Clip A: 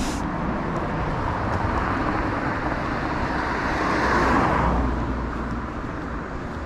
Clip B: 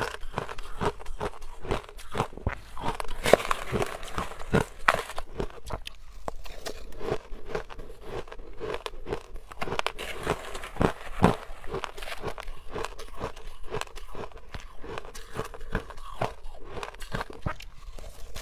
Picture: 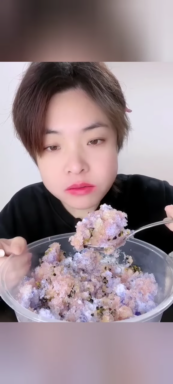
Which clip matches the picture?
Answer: B